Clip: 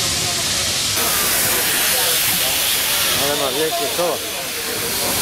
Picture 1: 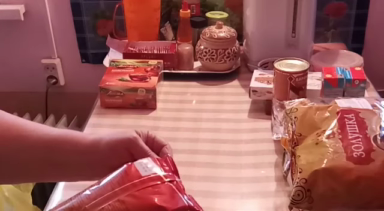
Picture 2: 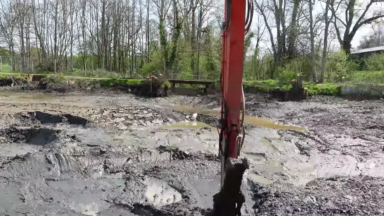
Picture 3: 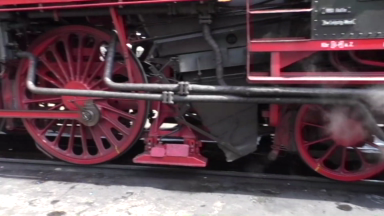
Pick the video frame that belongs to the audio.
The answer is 3